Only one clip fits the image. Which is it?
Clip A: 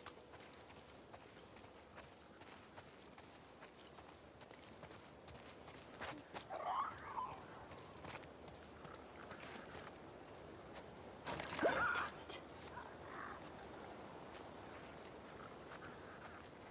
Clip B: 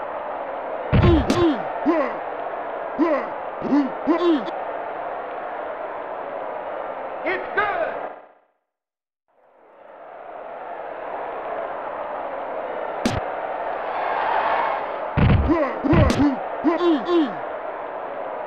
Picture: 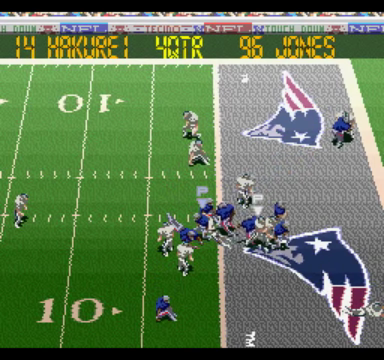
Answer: B